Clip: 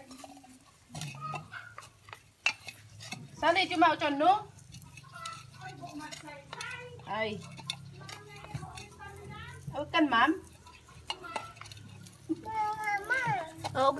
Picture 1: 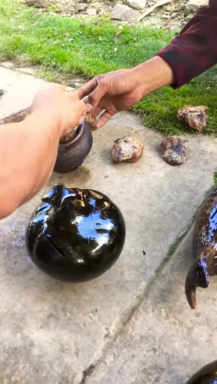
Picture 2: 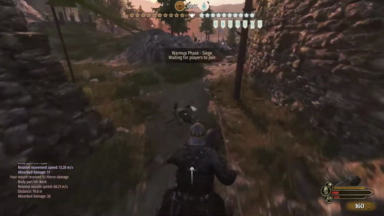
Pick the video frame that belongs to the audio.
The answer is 1